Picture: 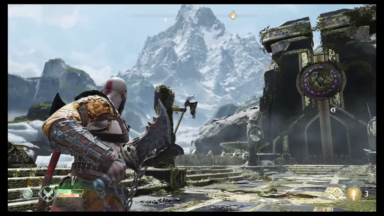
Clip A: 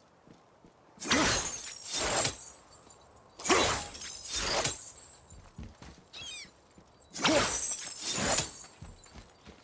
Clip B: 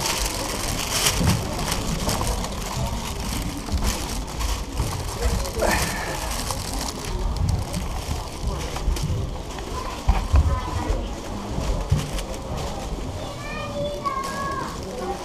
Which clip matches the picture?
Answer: A